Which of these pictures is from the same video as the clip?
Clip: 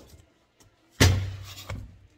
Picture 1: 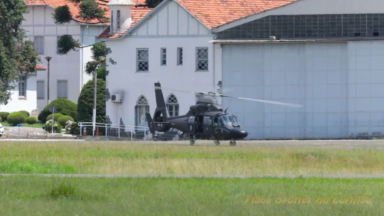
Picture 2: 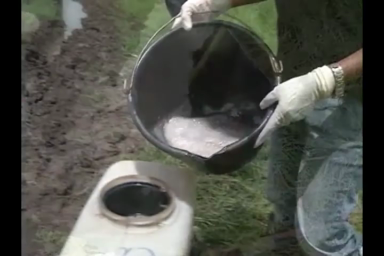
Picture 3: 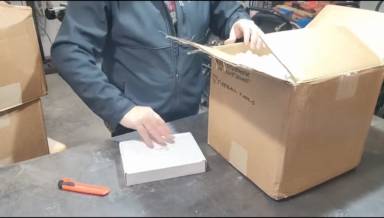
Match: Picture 3